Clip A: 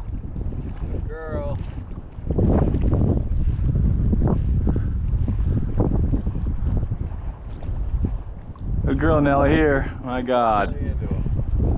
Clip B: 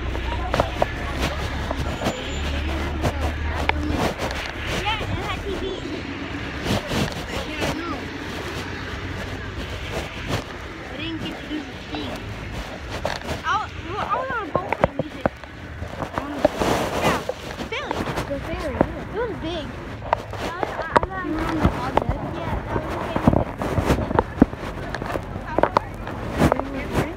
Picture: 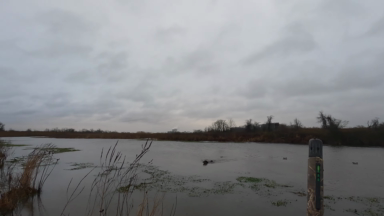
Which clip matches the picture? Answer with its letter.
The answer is A